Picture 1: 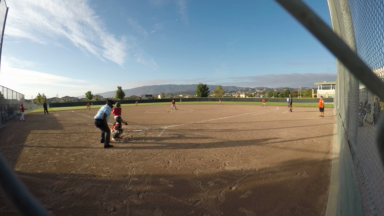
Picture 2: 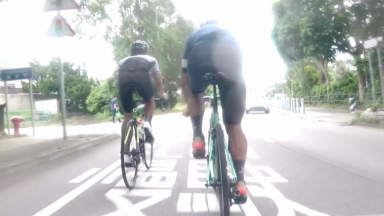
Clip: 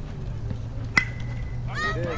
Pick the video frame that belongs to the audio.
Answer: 1